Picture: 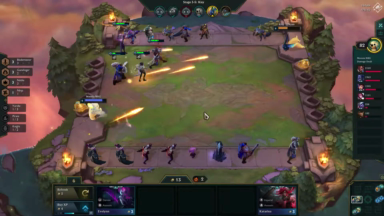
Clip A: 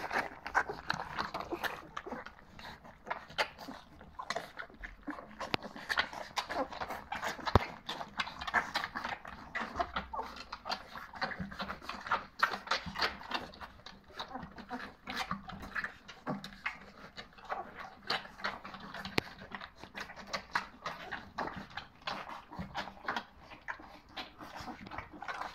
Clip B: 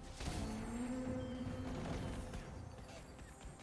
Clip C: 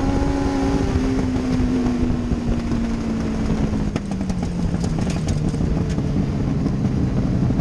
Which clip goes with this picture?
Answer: B